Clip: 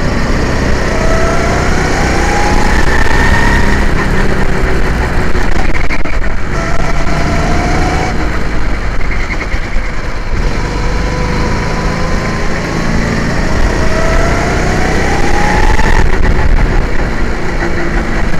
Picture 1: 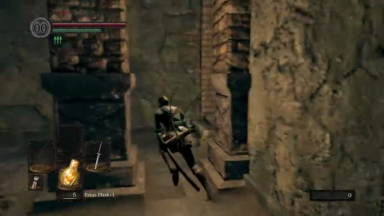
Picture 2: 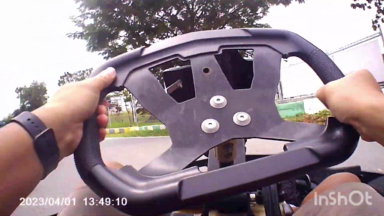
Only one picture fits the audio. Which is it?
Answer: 2